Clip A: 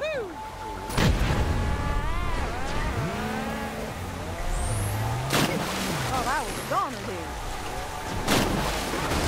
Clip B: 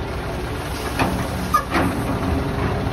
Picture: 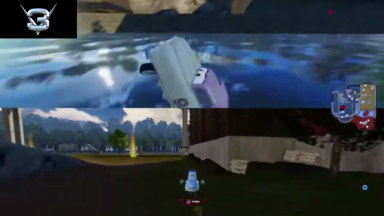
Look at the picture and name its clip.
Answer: A